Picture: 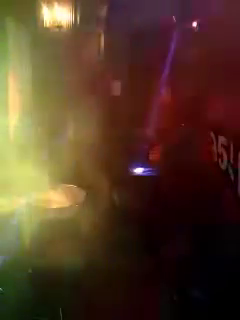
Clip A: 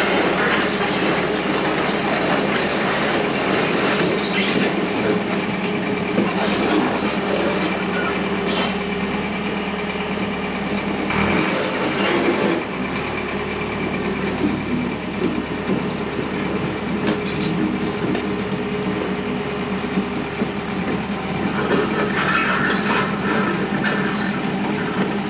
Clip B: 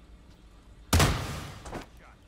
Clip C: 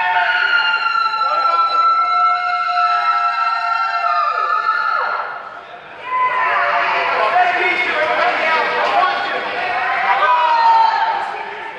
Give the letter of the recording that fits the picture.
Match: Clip C